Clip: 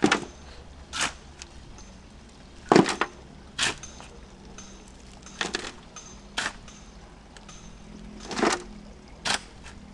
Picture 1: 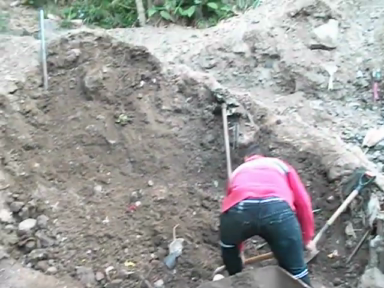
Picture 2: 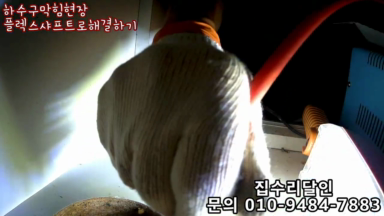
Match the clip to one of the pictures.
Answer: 1